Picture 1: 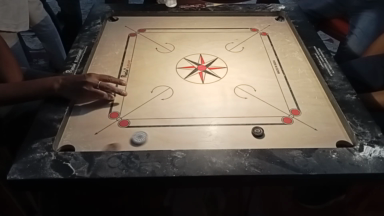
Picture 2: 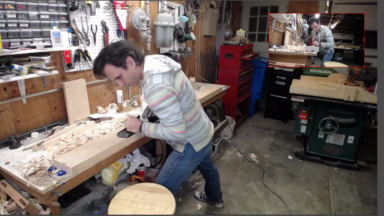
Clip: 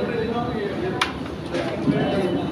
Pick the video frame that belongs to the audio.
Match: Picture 1